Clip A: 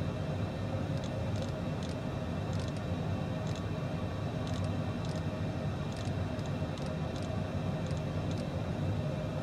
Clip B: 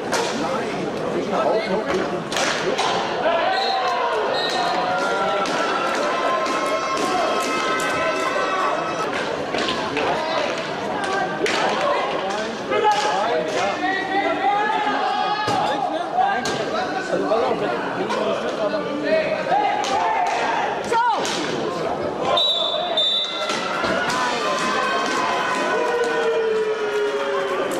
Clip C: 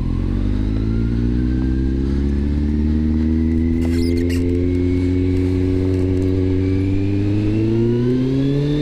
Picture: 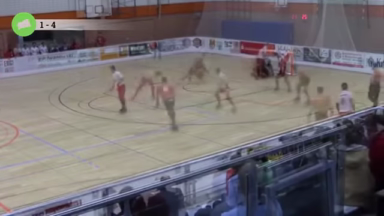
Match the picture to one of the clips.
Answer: B